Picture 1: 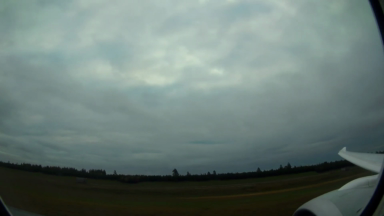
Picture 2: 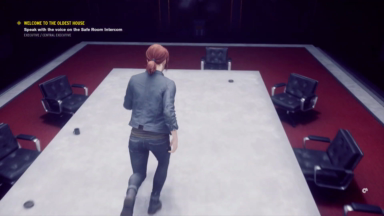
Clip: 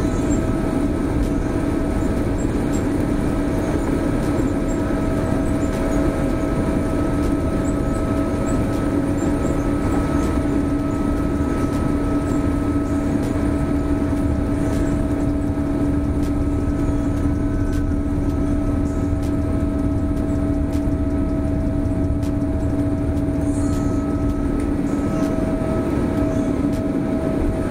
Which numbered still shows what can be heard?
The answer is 1